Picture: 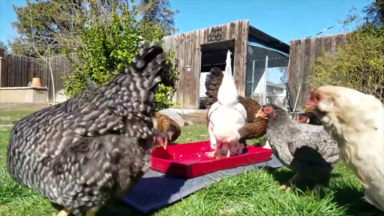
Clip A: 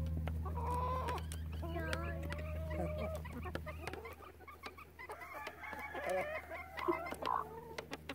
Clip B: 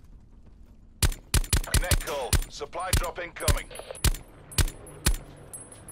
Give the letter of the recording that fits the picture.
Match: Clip A